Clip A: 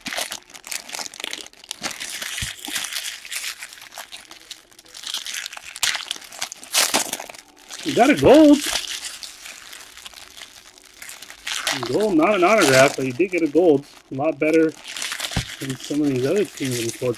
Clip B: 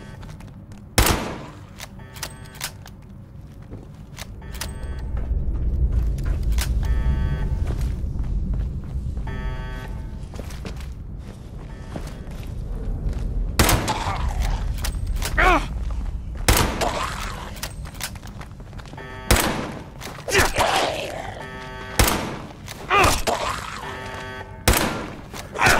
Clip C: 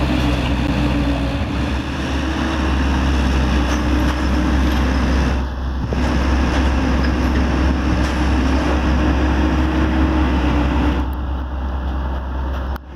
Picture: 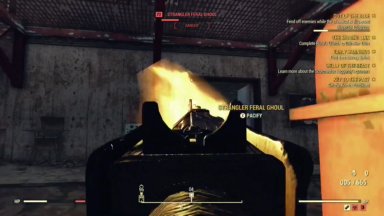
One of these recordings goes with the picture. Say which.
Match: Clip B